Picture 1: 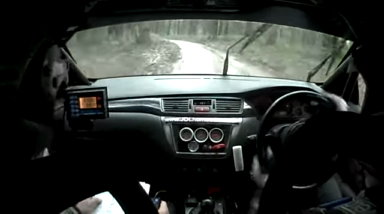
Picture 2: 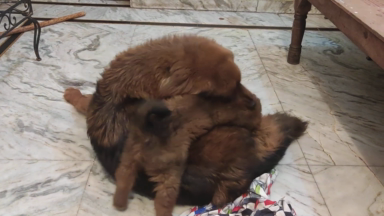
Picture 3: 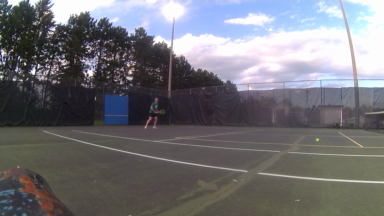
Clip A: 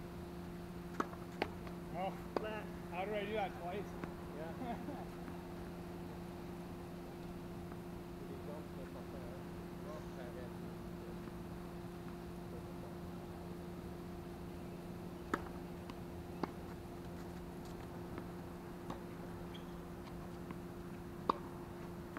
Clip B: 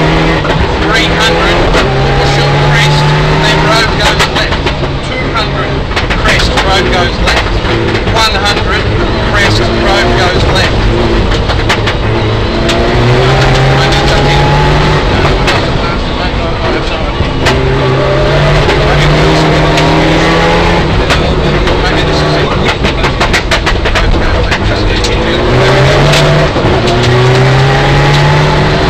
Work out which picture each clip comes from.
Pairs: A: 3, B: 1